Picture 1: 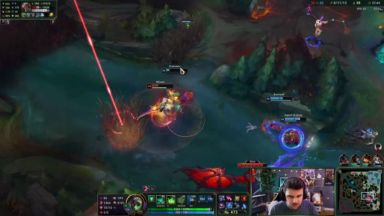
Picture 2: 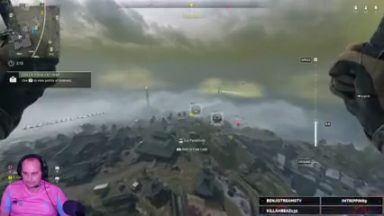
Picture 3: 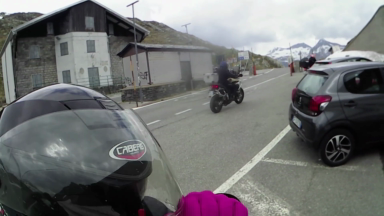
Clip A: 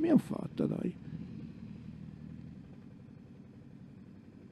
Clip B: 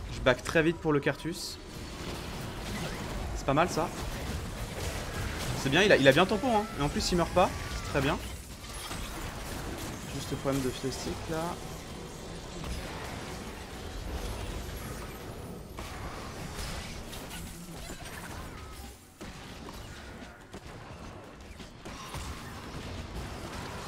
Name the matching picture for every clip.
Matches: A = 3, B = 1